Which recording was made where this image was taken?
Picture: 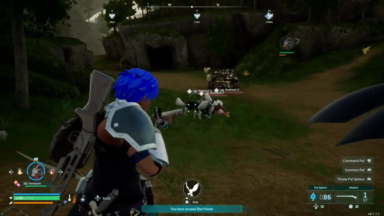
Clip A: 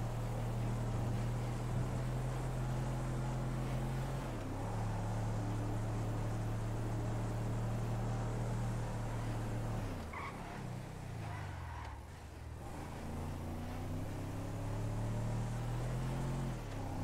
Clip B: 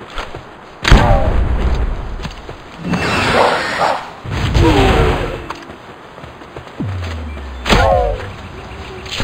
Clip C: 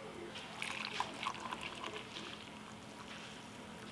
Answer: B